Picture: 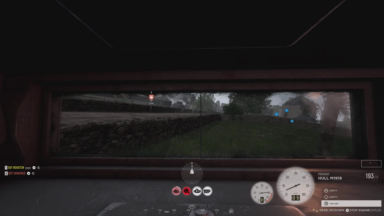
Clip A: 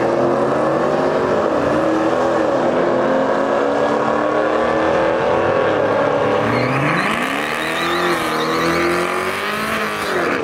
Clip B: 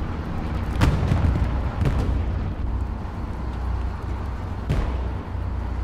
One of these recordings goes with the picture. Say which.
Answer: B